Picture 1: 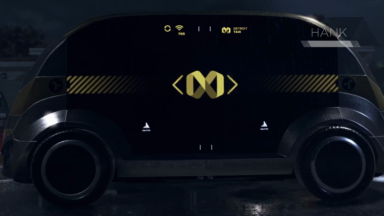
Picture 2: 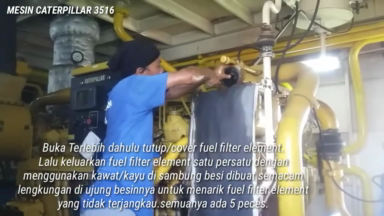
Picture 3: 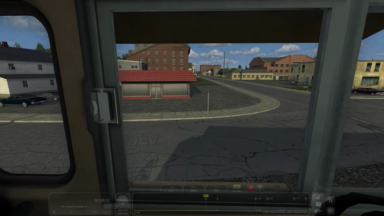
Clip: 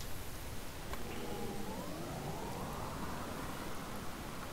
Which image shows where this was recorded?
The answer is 1